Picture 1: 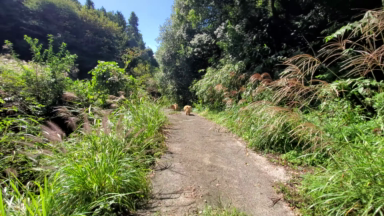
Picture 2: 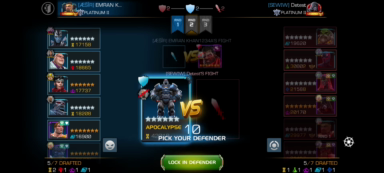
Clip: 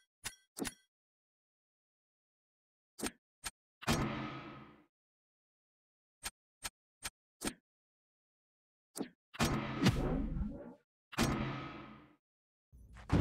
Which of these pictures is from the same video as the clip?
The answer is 2